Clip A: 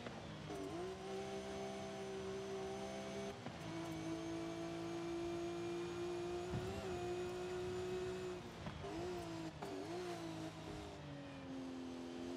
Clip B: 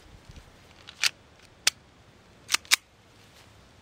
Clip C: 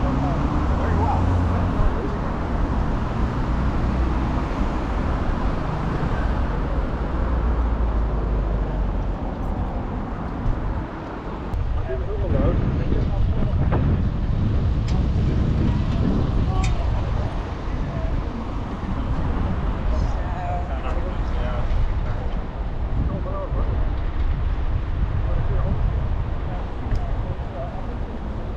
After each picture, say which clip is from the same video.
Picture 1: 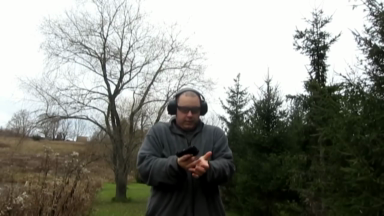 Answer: B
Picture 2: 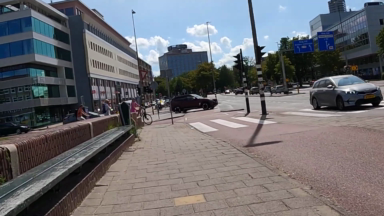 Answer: C